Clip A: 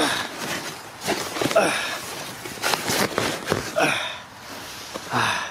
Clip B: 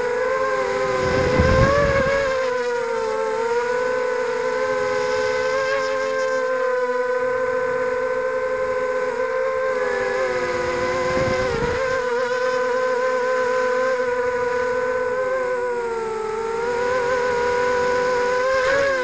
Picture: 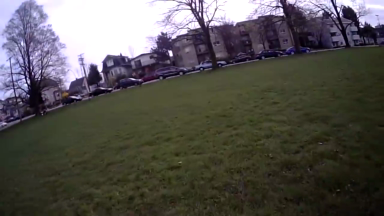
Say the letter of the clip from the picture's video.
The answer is B